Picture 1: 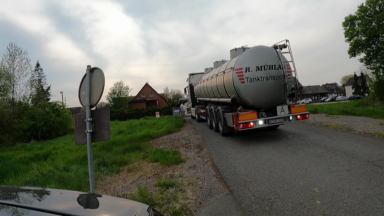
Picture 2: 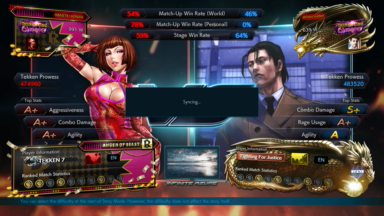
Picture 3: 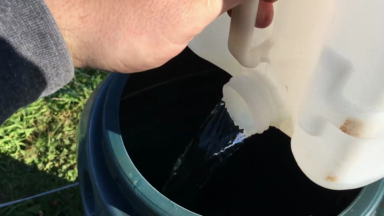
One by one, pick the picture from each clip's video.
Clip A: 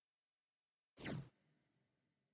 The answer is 2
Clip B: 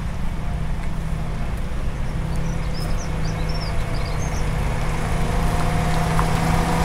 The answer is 1